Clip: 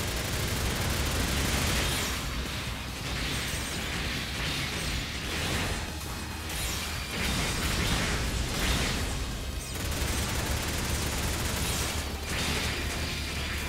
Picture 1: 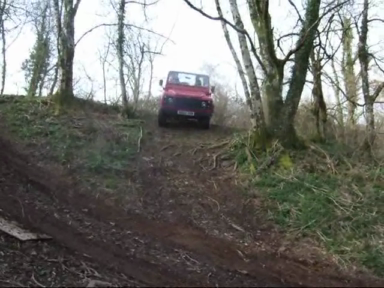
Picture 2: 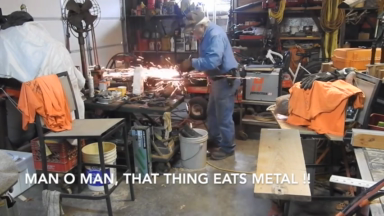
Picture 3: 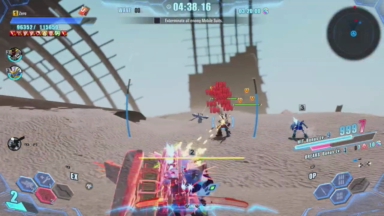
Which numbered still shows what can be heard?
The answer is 3